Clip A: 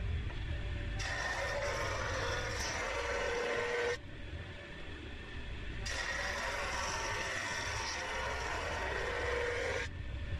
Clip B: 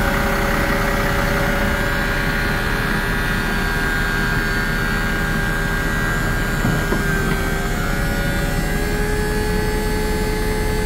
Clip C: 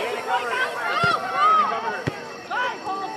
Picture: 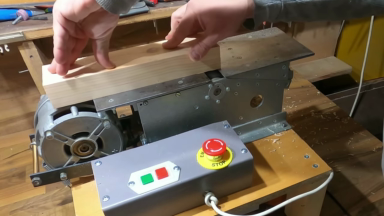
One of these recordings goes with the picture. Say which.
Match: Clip A